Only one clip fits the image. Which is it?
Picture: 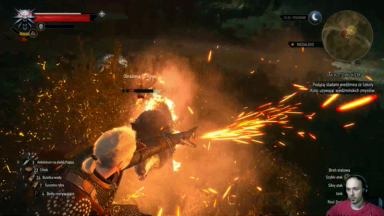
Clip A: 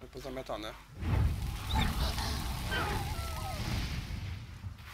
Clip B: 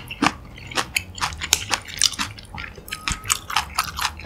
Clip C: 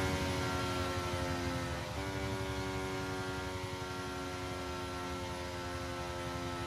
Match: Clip A